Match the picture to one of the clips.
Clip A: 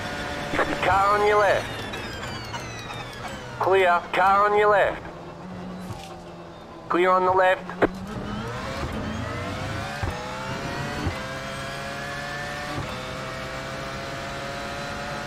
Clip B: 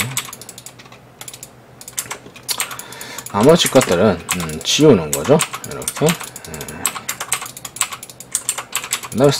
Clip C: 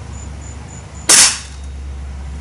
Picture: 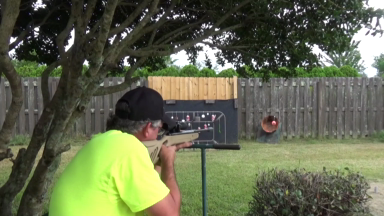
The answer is C